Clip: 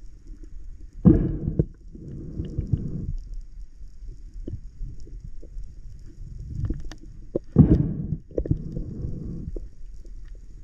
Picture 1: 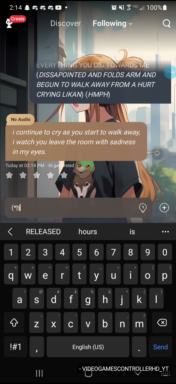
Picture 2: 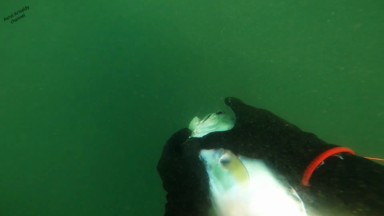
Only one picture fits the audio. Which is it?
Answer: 2